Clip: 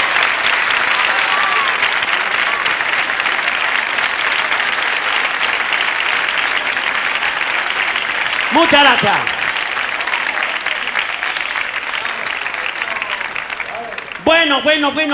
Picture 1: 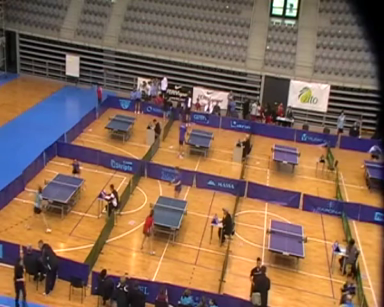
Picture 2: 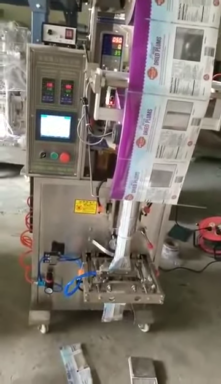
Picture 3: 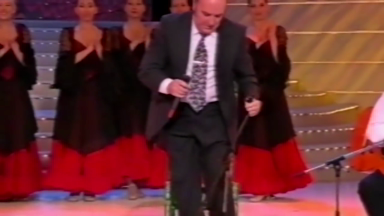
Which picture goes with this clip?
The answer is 3